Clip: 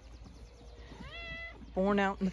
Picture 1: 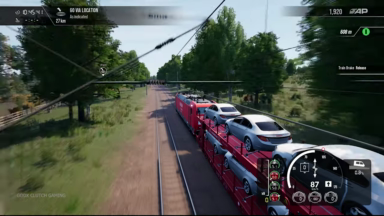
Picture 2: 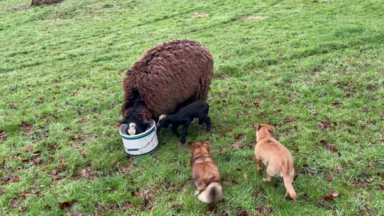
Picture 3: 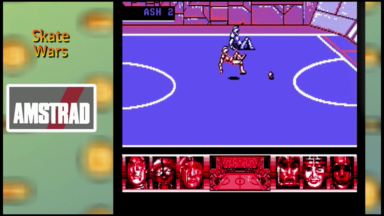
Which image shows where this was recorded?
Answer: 2